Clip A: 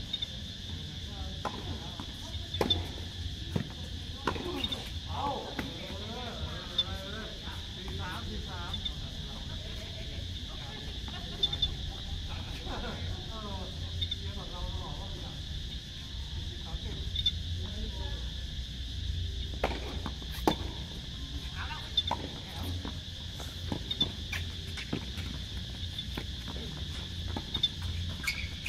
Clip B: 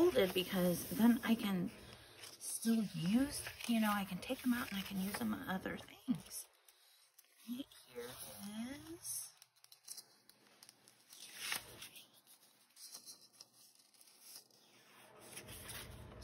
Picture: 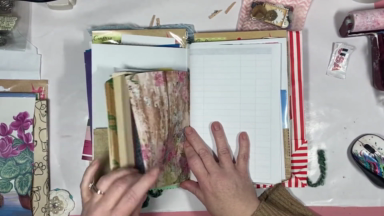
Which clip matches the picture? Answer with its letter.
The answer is B